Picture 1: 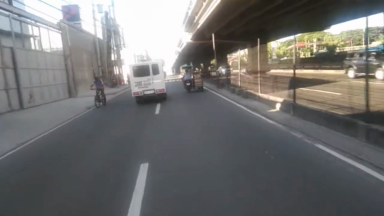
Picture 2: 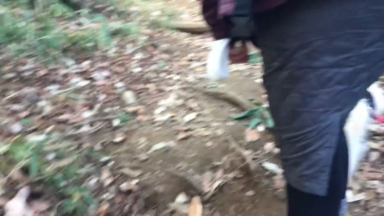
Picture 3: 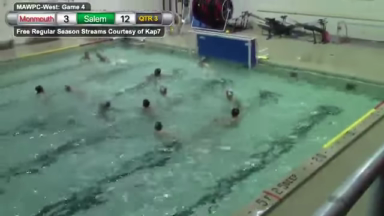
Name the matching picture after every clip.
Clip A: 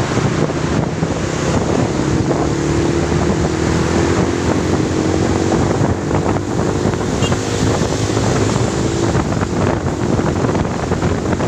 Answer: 1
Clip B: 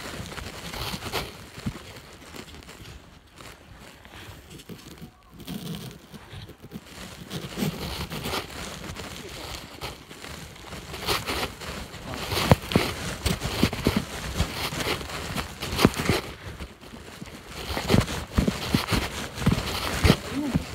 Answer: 2